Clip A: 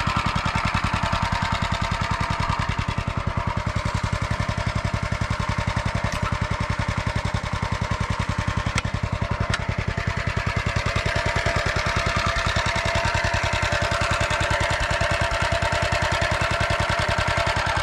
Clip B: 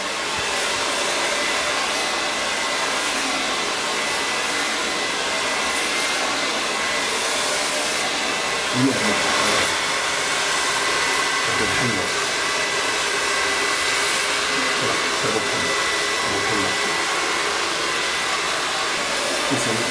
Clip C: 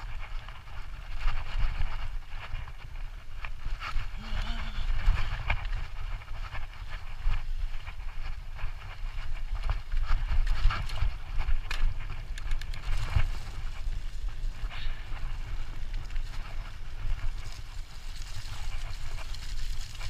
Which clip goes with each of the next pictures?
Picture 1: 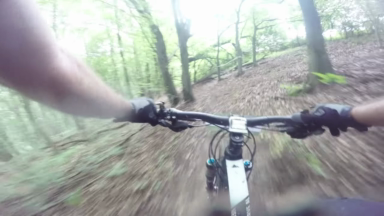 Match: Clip C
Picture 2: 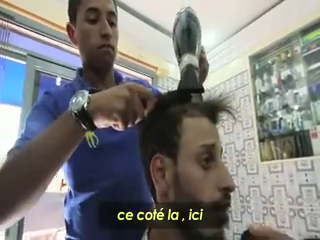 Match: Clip B